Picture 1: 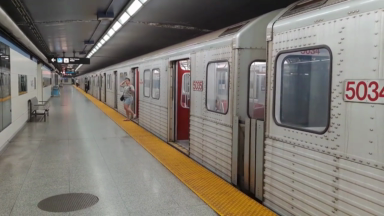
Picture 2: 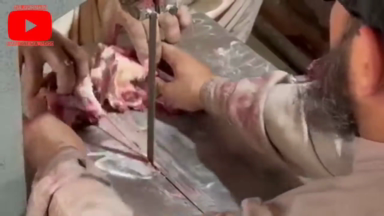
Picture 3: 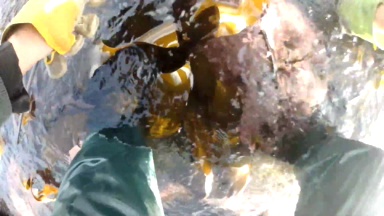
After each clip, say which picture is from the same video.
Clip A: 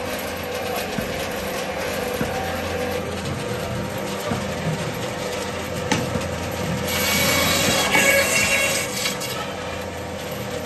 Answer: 2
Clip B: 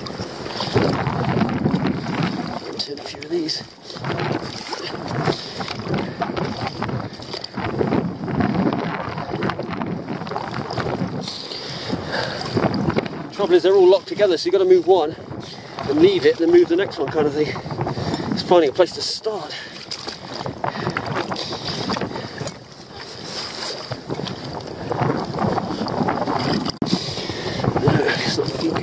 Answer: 3